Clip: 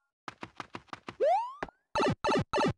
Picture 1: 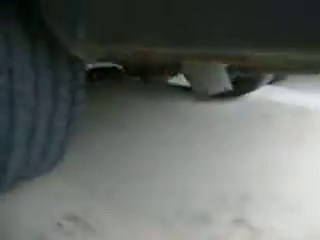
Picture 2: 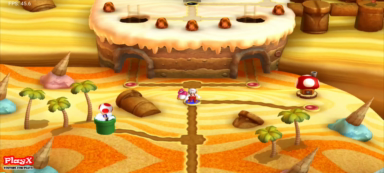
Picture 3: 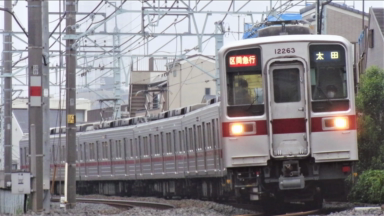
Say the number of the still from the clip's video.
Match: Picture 2